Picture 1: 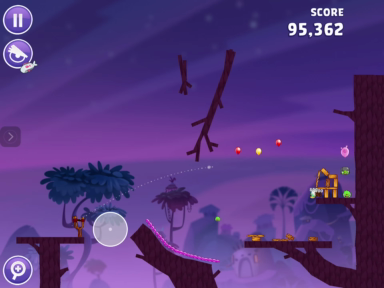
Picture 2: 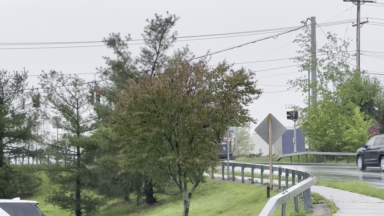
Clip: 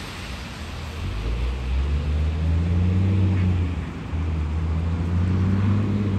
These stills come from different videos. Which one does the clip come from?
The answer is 2